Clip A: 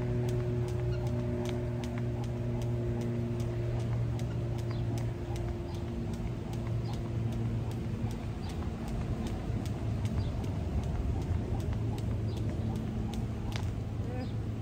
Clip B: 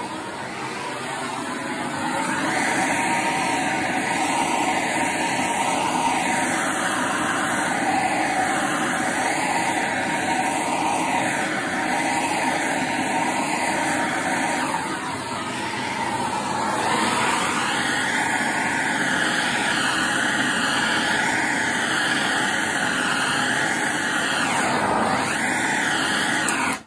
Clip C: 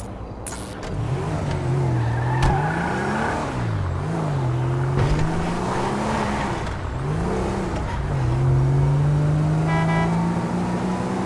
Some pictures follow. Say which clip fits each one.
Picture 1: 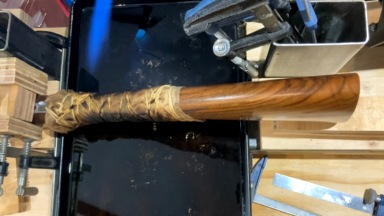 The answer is B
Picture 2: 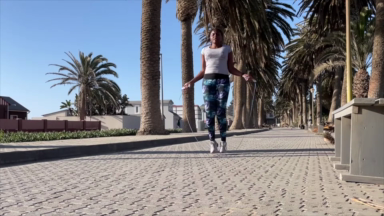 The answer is A